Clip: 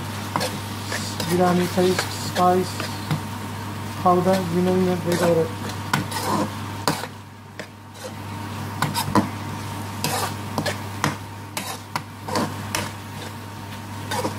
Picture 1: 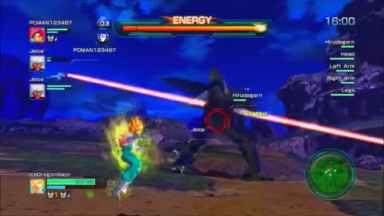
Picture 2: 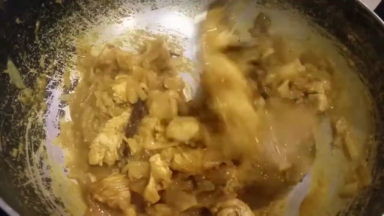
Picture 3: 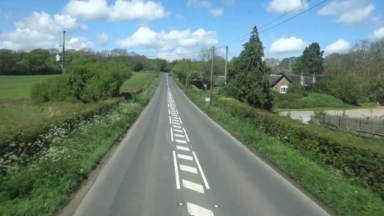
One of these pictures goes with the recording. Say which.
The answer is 2